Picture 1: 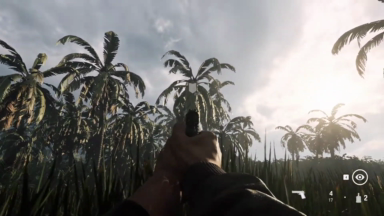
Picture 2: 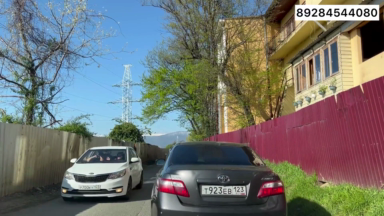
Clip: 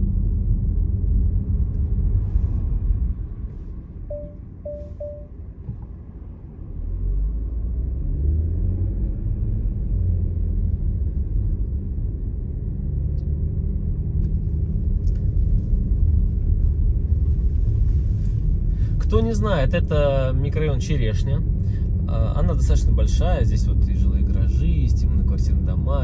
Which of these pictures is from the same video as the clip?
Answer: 2